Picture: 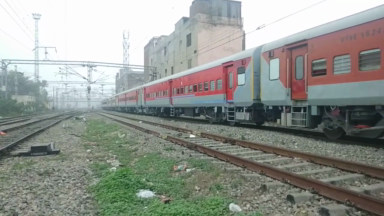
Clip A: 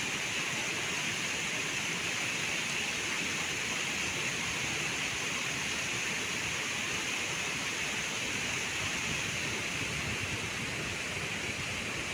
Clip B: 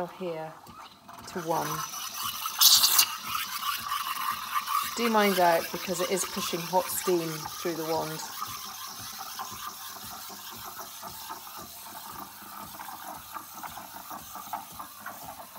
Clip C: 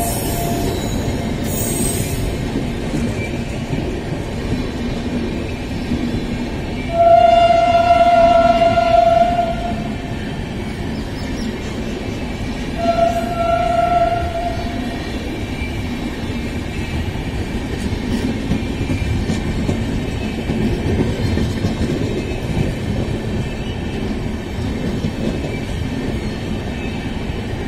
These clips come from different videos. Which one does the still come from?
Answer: C